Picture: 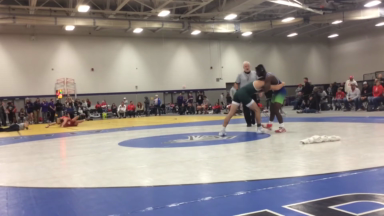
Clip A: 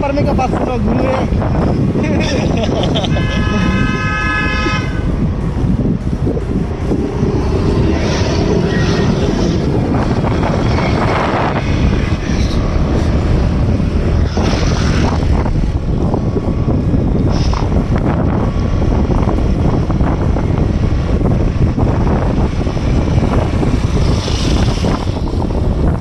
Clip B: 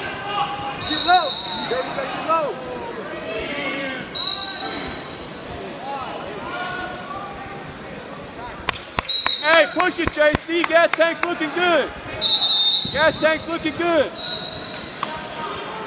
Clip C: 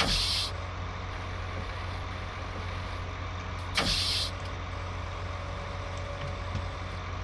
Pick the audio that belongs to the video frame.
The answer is B